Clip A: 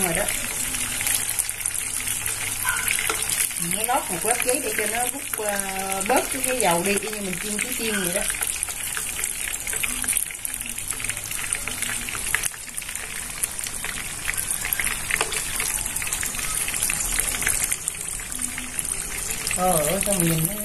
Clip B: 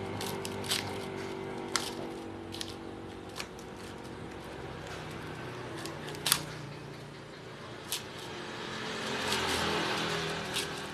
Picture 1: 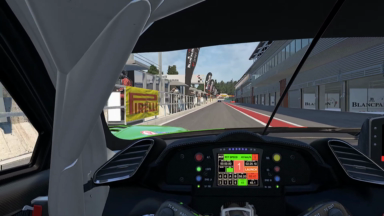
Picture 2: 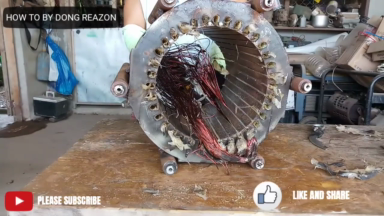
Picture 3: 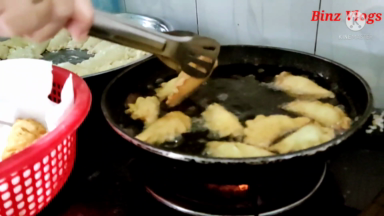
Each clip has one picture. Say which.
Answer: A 3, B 2